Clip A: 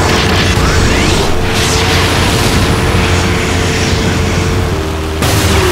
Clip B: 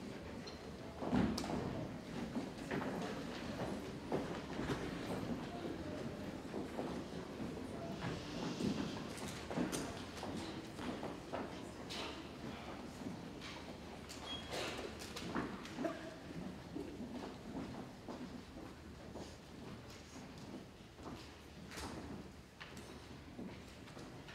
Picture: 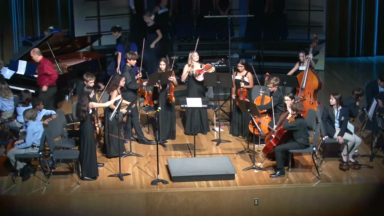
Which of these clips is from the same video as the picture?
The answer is B